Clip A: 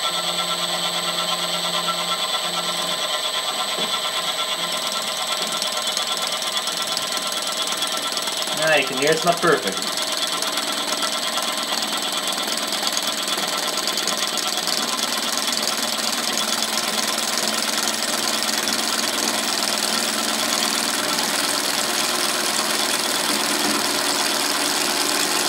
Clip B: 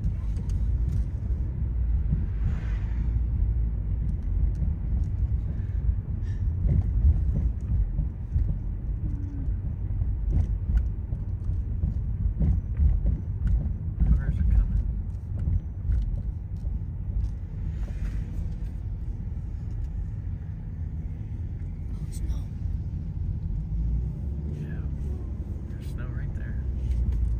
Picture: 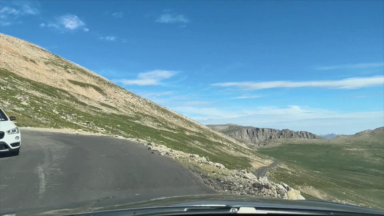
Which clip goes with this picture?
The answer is B